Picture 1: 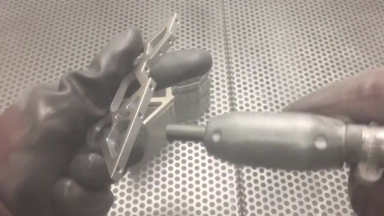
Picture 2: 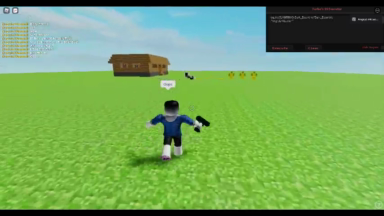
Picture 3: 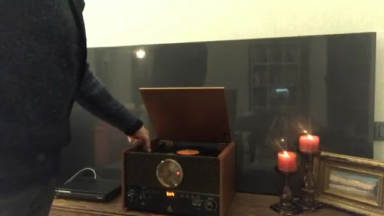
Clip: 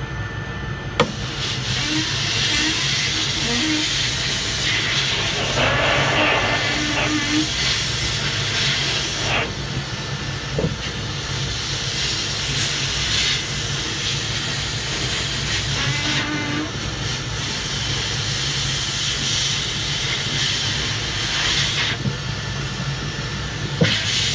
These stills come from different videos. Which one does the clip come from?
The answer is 1